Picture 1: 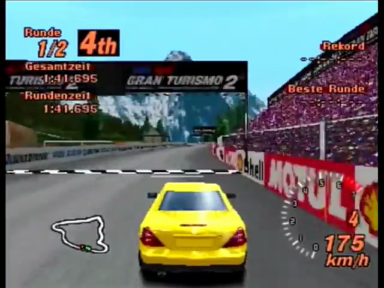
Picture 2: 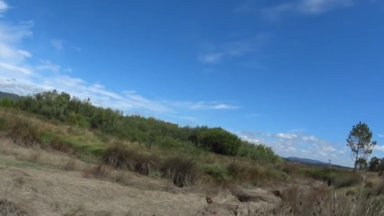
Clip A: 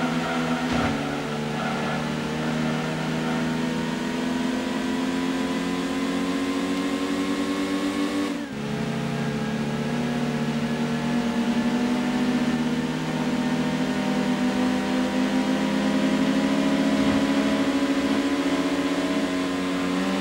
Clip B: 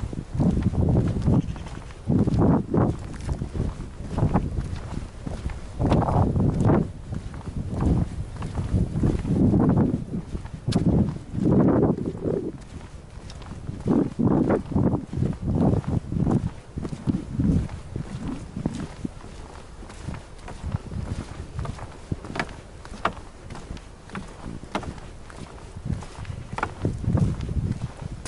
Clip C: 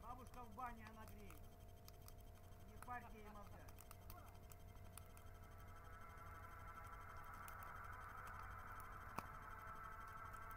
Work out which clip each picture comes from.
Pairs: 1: A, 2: B